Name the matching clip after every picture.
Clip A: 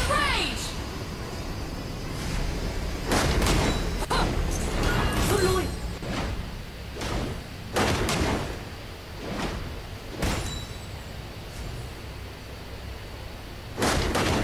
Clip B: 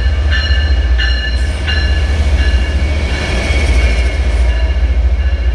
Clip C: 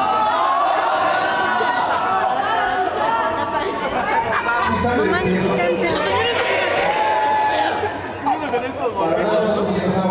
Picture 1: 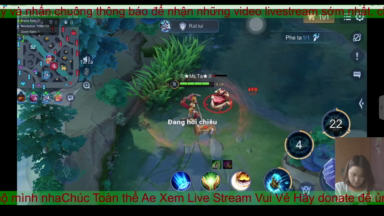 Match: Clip A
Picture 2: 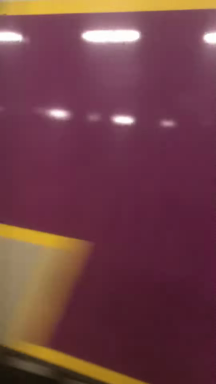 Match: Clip B